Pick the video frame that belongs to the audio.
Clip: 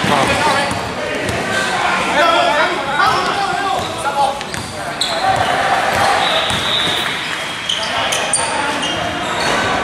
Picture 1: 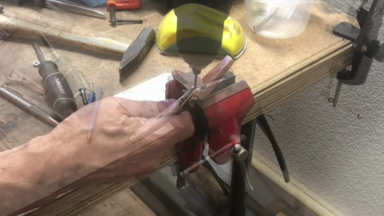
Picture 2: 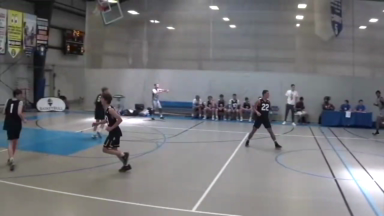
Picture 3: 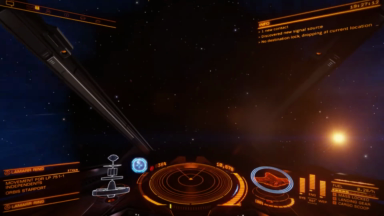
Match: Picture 2